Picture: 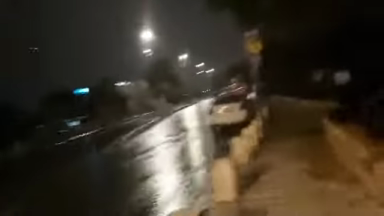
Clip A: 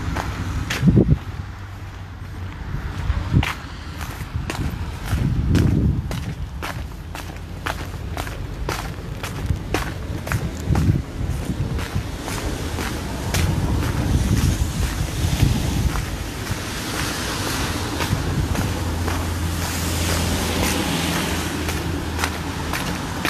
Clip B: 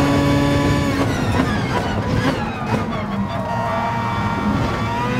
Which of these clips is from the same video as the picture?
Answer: A